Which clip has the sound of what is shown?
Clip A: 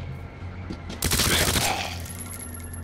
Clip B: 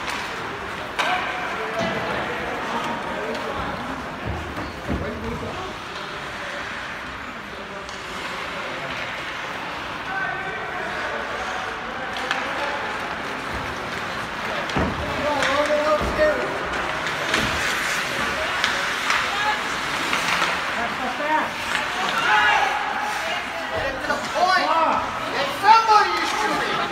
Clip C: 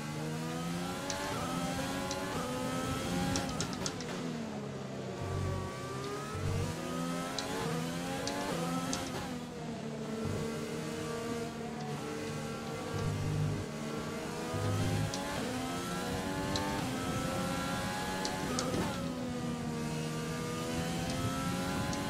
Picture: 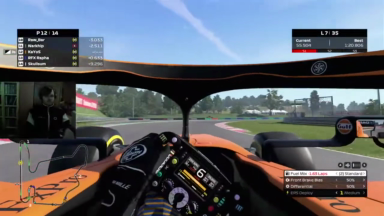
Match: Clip C